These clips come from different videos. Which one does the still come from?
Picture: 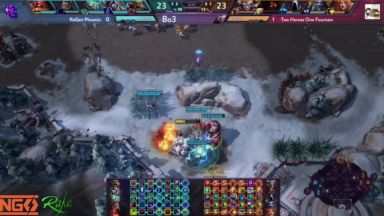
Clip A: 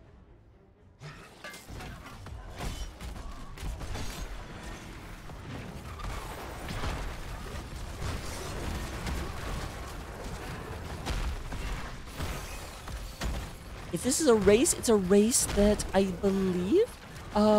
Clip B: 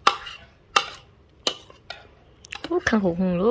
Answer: A